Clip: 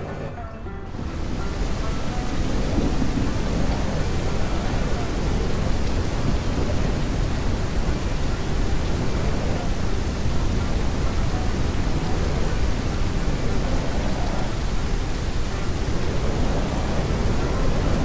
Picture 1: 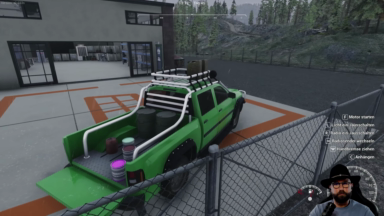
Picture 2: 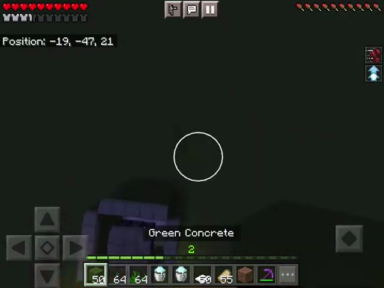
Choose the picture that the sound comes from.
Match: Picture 1